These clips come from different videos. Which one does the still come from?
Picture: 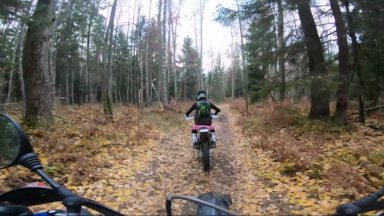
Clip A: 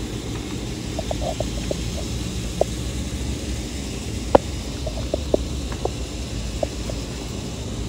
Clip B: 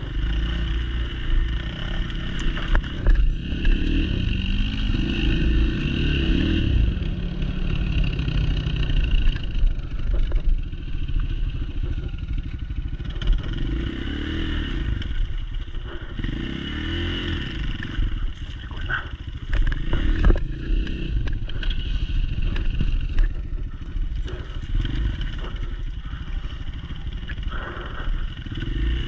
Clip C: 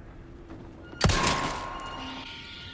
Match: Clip B